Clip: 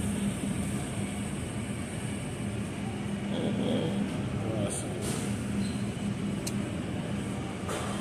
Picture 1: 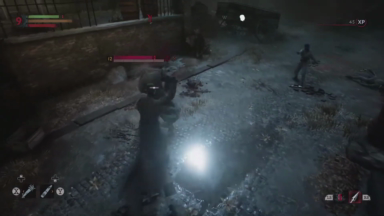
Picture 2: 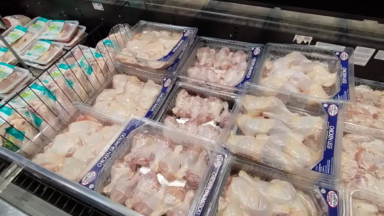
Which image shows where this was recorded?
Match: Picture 2